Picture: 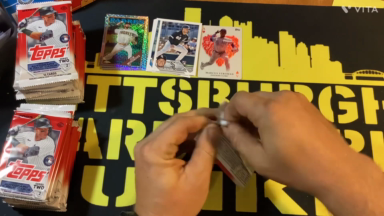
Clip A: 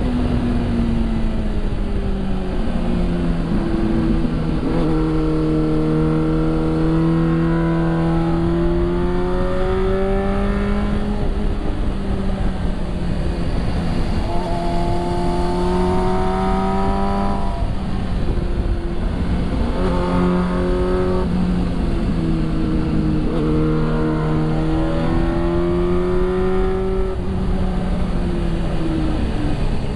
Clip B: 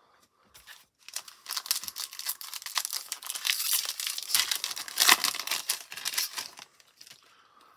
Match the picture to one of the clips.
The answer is B